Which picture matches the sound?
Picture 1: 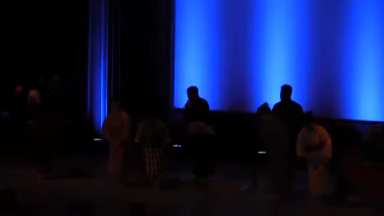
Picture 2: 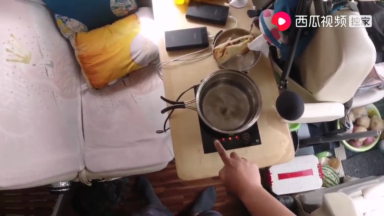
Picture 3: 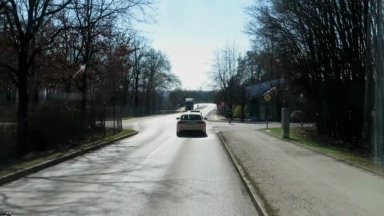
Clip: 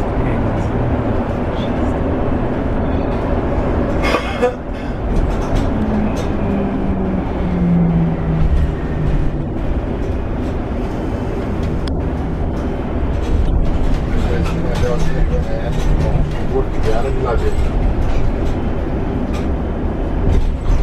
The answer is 3